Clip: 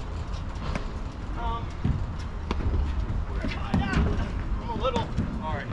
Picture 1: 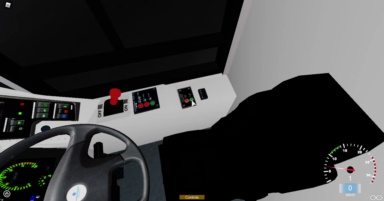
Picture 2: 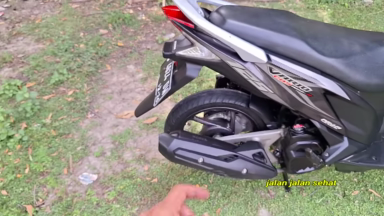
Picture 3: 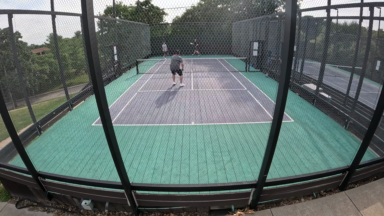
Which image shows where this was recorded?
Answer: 3